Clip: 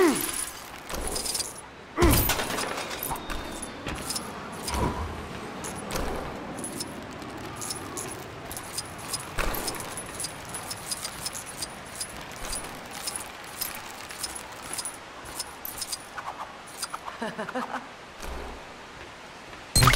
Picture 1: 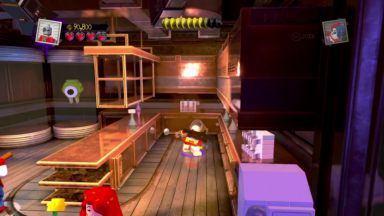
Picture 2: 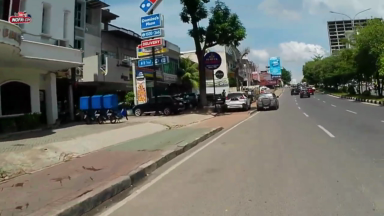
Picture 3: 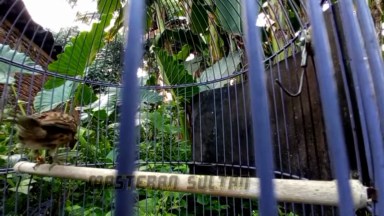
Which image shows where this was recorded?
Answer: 1